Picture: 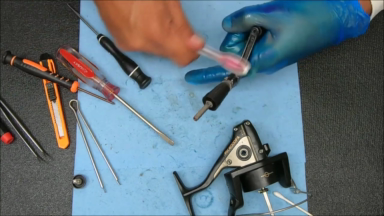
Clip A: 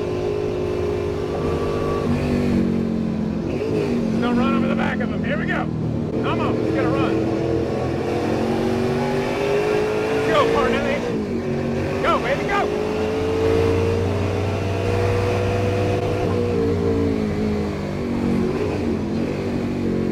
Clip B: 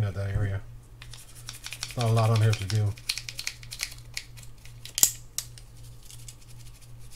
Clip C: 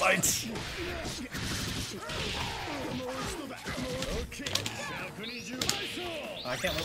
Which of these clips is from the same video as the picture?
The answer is B